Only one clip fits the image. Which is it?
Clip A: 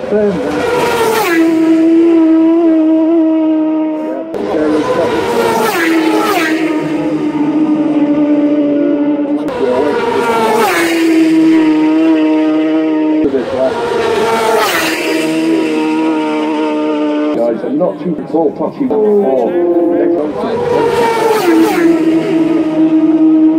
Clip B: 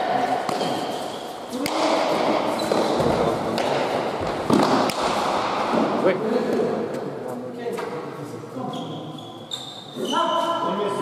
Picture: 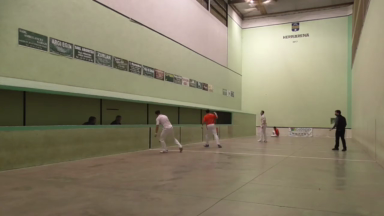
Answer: B